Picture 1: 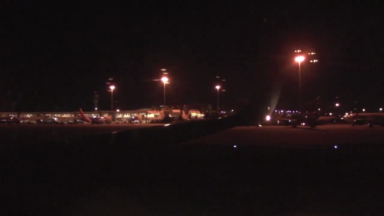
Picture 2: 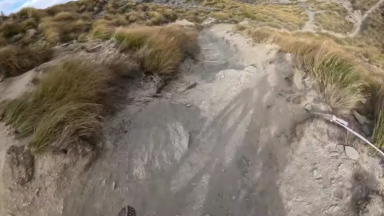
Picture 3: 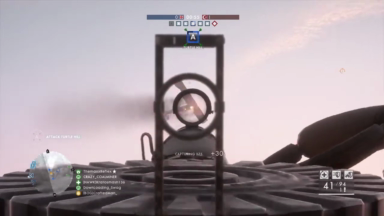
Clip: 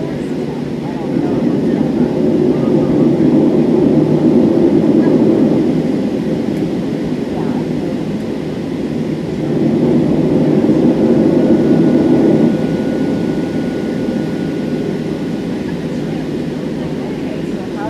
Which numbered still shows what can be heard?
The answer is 1